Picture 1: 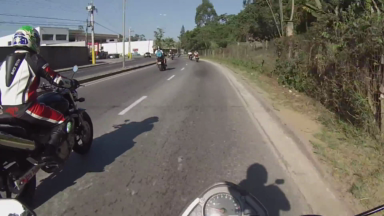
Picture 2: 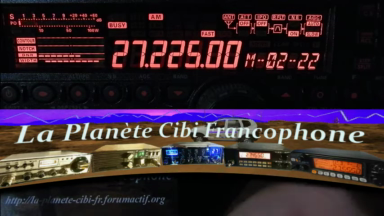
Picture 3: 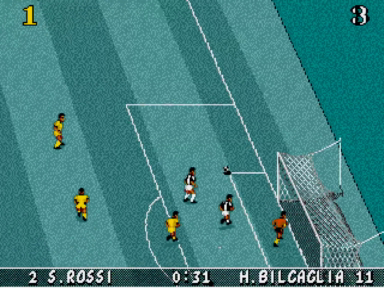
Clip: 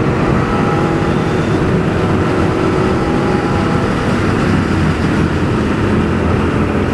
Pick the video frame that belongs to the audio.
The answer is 1